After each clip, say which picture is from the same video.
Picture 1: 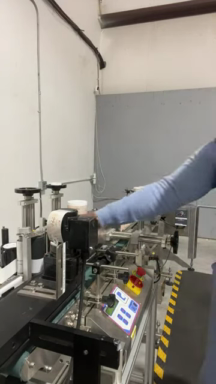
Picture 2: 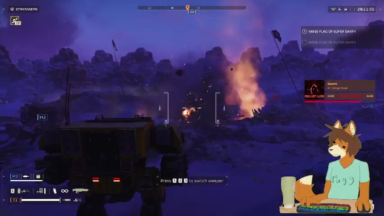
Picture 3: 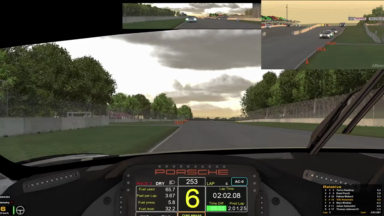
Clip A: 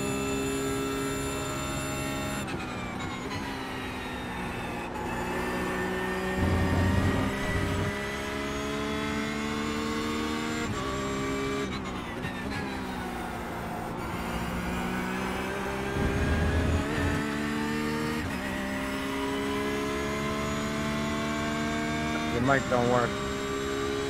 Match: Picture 3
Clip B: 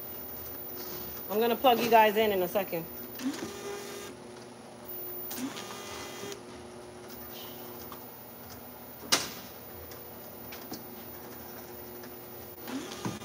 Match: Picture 1